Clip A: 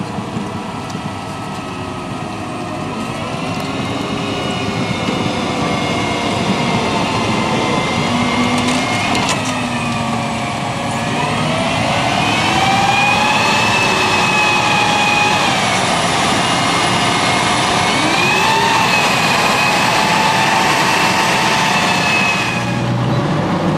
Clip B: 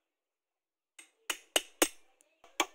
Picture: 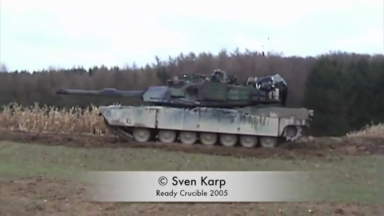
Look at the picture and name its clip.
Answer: A